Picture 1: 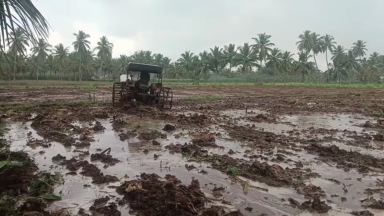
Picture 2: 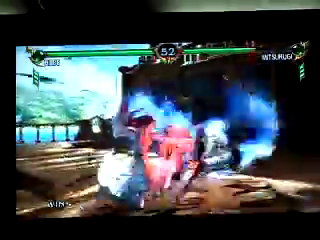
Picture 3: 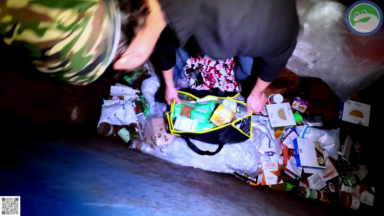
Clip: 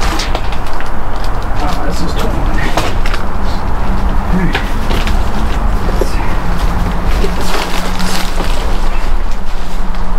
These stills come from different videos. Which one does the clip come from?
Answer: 3